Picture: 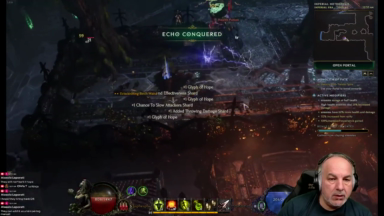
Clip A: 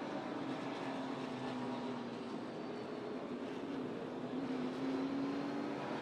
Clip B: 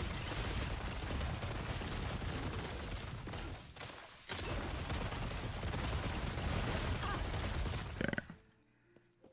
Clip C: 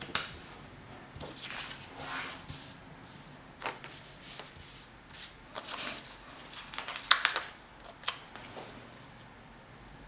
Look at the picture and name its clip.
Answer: B